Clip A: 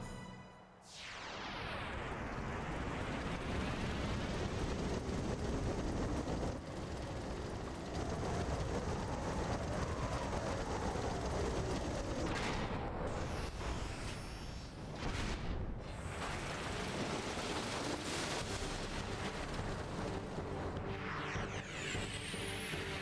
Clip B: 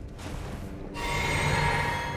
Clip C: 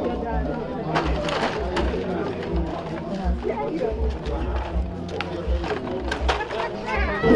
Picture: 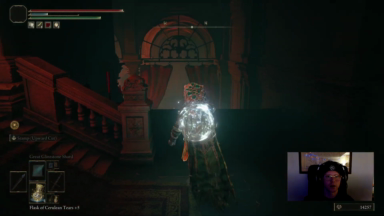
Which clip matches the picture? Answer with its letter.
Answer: B